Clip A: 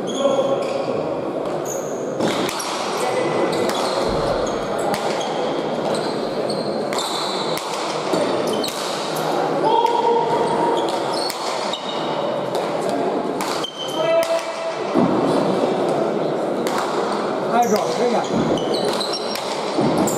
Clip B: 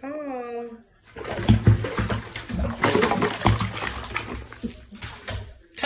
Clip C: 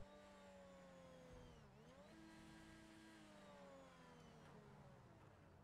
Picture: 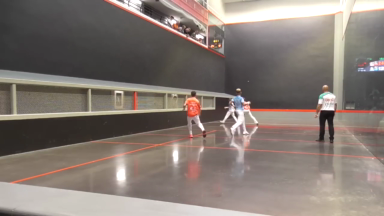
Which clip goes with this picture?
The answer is A